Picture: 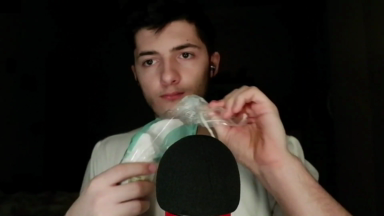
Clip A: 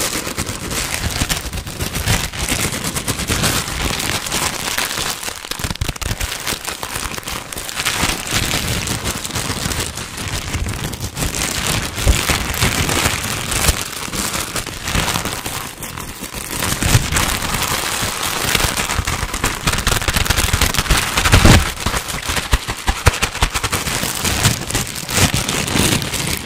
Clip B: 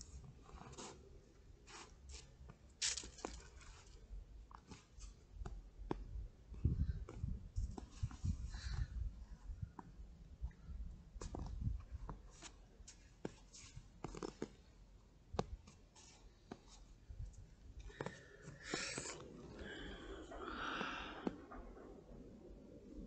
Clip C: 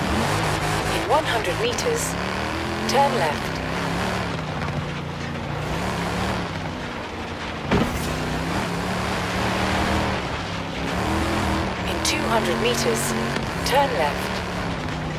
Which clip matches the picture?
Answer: A